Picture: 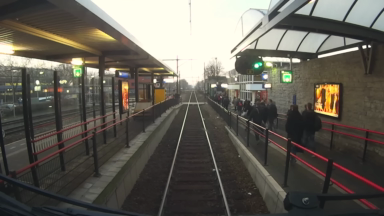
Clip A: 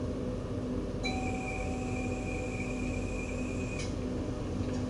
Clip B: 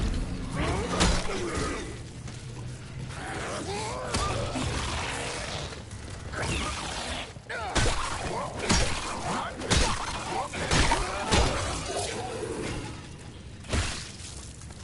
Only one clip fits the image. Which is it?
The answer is A